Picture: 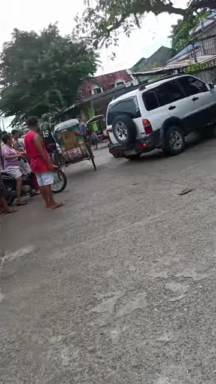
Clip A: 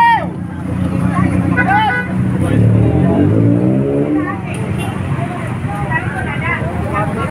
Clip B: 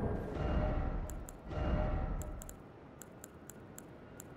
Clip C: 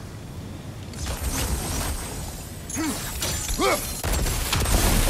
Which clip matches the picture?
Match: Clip A